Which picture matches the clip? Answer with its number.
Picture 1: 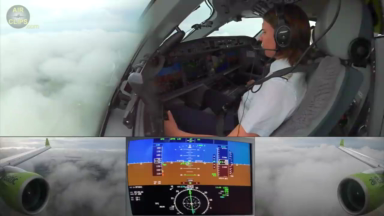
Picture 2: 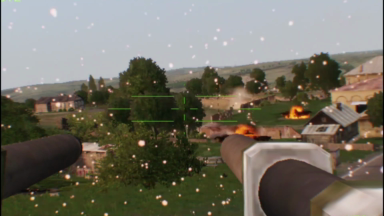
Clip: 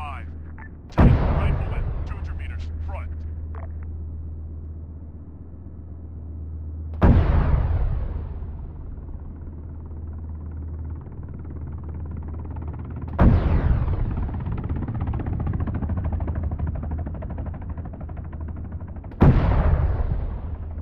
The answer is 2